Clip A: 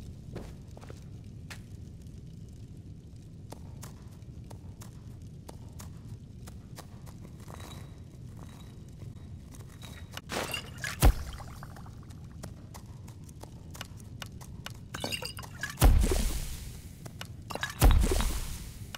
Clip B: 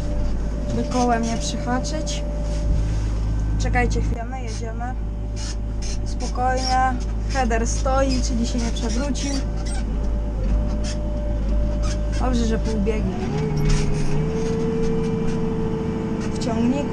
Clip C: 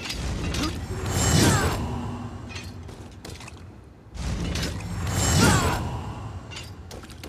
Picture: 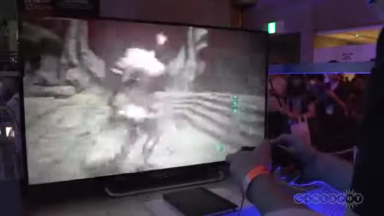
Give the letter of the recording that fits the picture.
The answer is C